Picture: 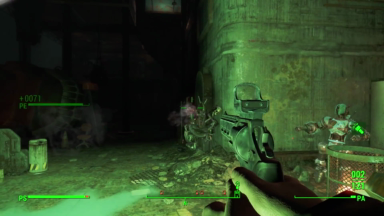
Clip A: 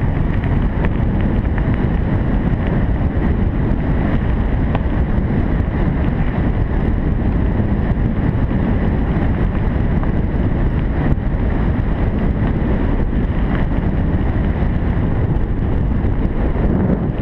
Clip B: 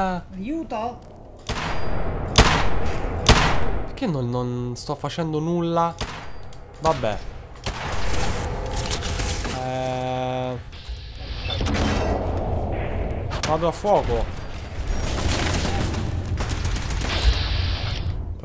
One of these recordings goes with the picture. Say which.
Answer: B